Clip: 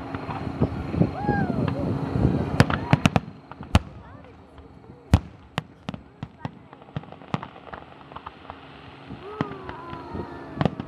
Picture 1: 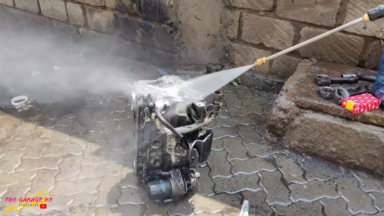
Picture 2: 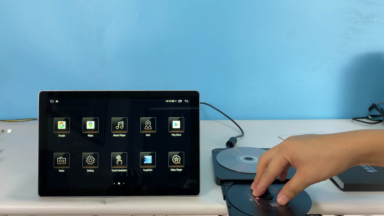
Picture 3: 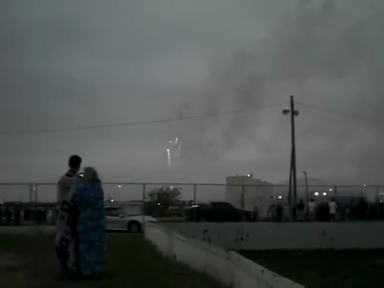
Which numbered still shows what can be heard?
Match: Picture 3